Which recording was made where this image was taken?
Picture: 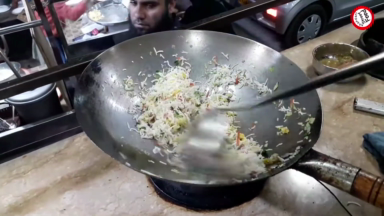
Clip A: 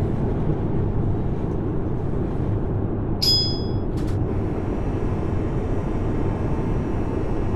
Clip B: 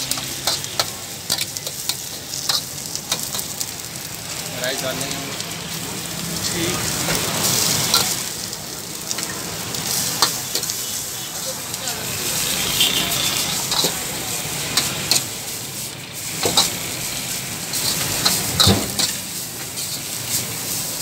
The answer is B